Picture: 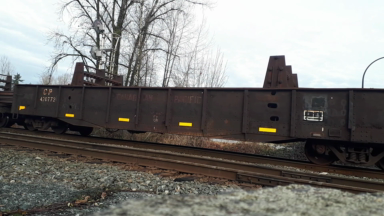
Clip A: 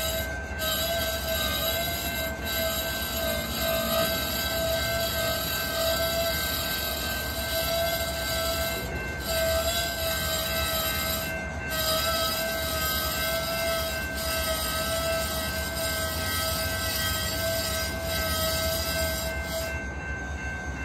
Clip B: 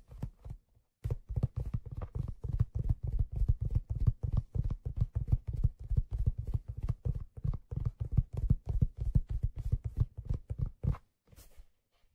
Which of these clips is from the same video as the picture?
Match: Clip A